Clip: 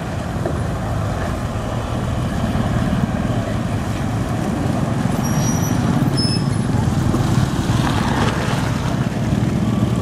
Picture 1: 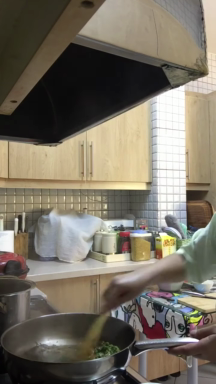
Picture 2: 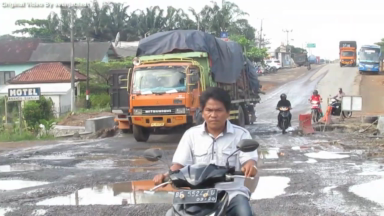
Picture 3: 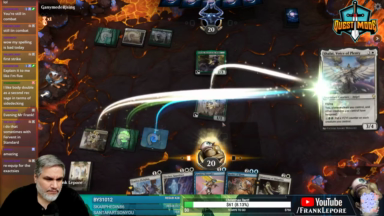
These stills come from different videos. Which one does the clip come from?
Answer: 2